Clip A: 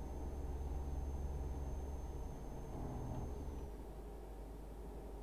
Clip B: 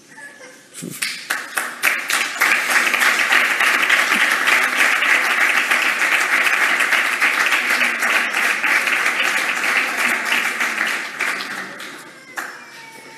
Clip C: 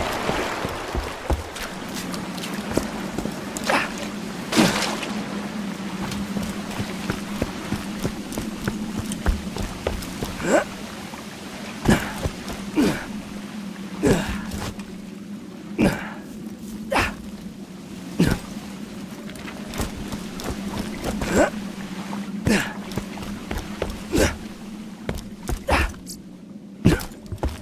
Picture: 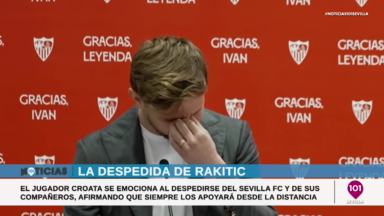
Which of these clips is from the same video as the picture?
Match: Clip B